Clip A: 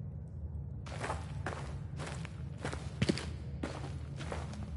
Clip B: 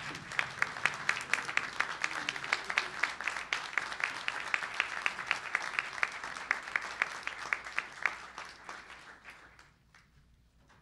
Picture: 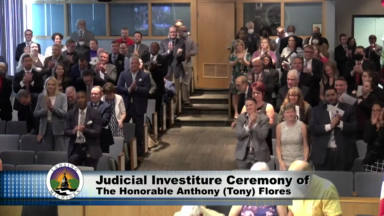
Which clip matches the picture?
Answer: B